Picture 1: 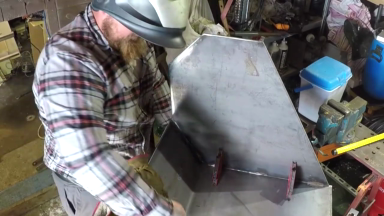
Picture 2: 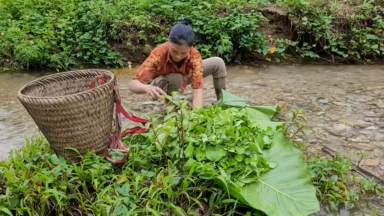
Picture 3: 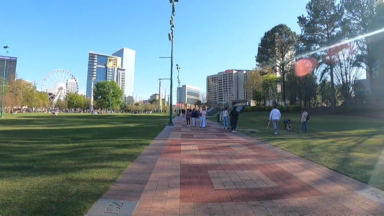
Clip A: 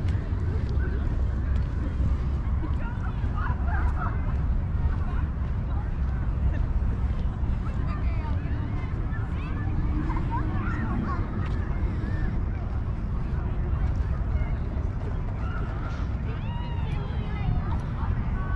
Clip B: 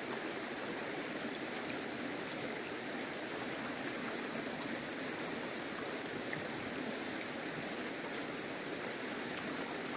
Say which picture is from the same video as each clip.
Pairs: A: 3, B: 2